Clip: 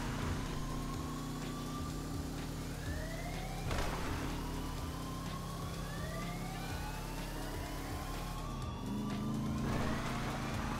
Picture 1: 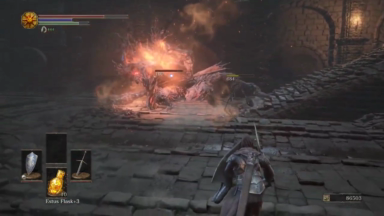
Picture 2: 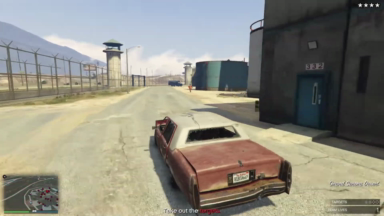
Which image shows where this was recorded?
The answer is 2